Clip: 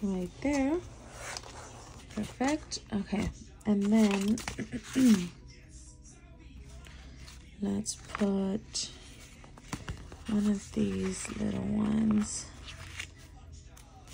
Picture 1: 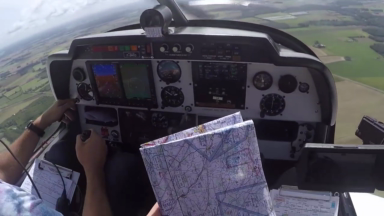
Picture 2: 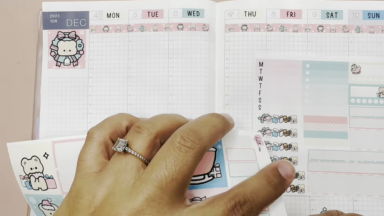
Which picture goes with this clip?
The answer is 2